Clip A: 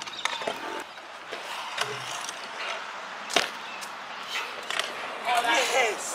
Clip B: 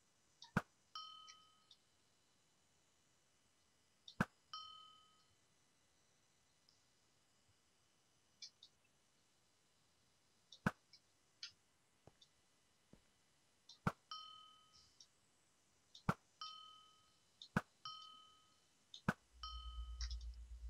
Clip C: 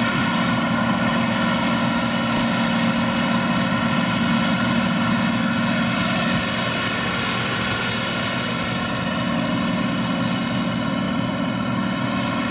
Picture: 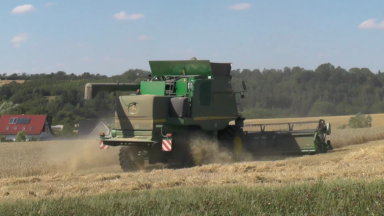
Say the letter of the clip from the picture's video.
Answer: C